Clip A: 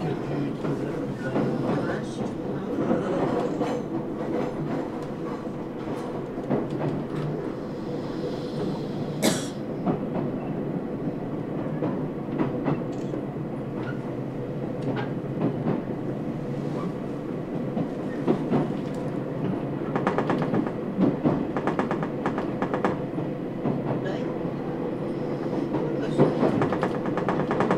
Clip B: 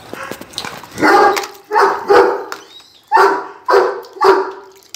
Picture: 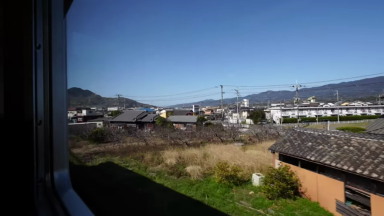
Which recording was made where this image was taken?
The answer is A